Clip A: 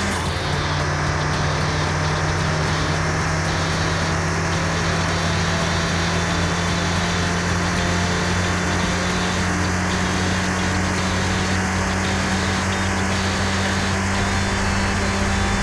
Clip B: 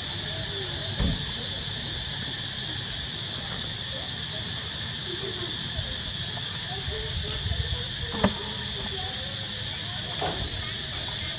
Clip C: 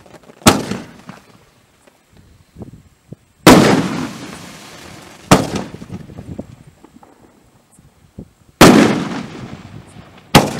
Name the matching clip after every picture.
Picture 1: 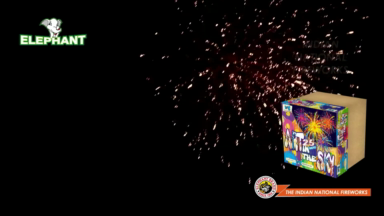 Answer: C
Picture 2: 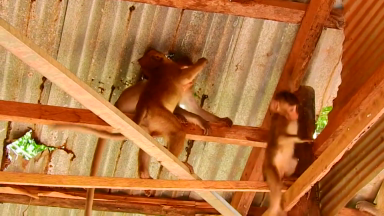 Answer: B